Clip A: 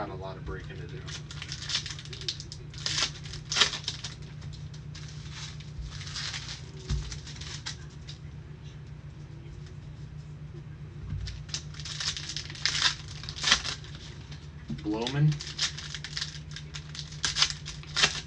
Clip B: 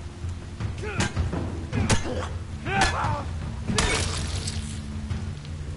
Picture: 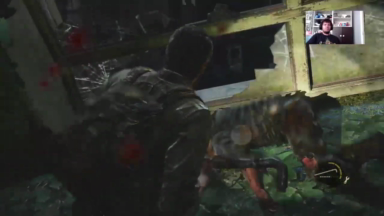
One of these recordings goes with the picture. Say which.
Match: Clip B